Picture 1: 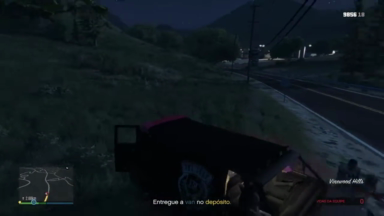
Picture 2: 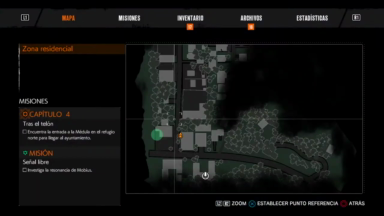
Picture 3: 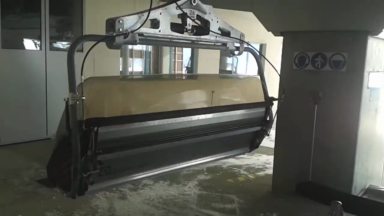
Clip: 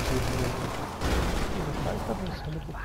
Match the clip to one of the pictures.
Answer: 1